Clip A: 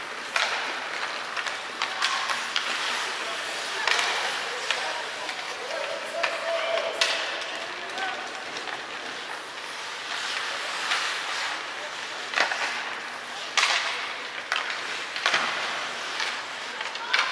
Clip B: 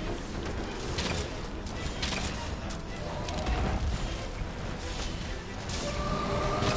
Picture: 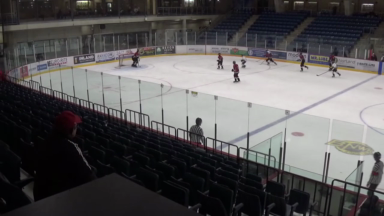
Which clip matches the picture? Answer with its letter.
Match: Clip A